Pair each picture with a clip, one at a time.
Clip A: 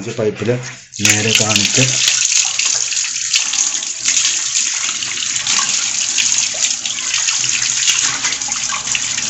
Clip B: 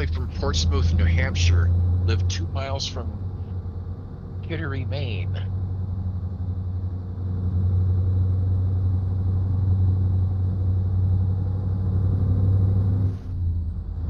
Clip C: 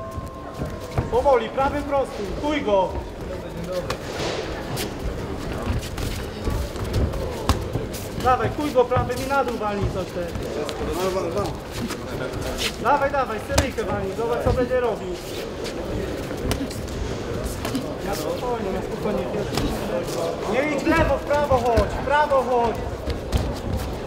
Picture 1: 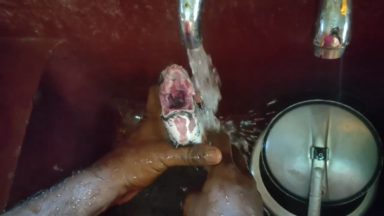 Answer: A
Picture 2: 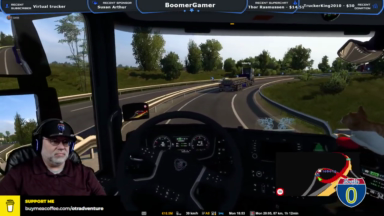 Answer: B